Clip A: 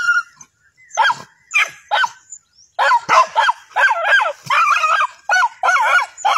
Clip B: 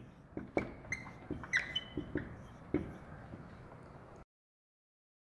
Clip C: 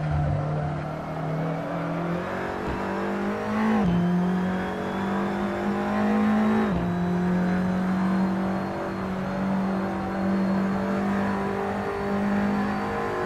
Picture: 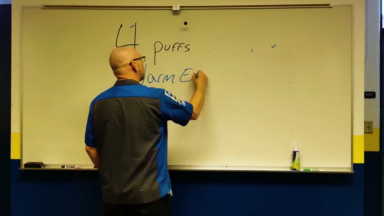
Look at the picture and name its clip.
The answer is B